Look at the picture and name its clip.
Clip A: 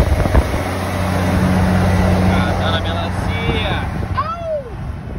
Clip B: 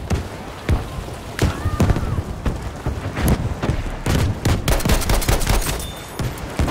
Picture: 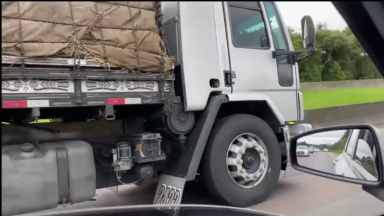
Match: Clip A